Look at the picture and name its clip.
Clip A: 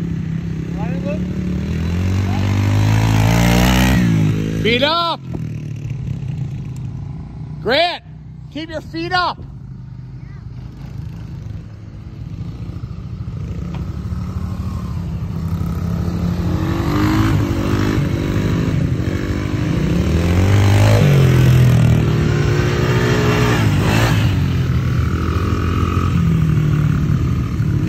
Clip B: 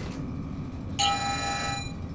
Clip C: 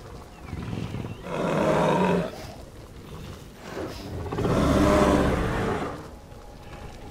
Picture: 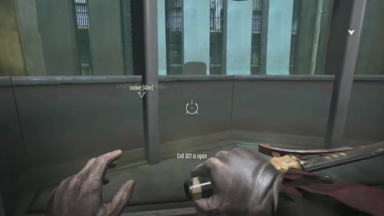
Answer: B